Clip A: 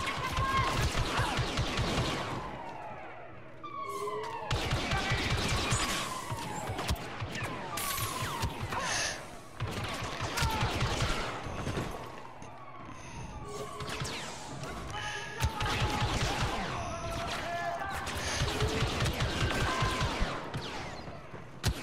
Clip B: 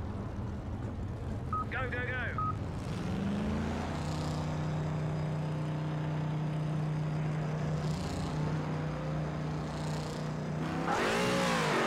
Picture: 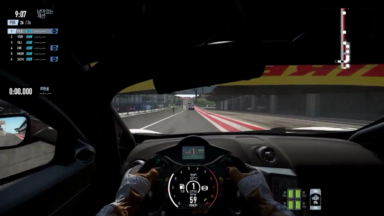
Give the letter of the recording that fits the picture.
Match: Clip B